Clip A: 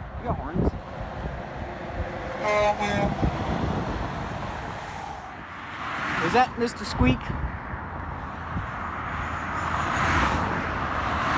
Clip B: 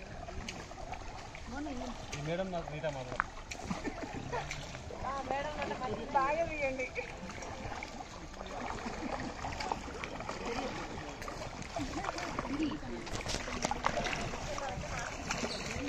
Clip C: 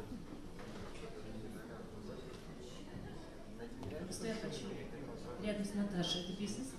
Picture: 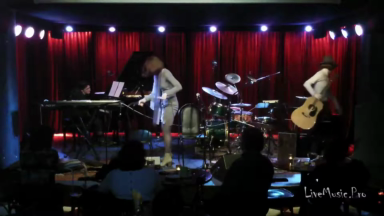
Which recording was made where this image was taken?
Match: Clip C